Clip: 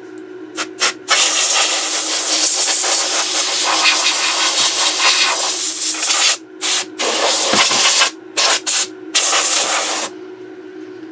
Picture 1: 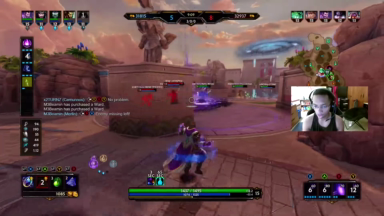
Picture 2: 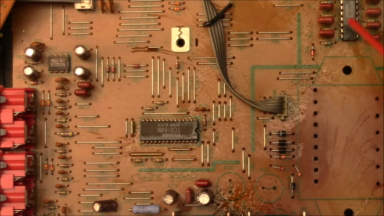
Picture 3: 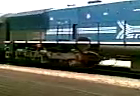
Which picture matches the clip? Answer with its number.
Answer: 2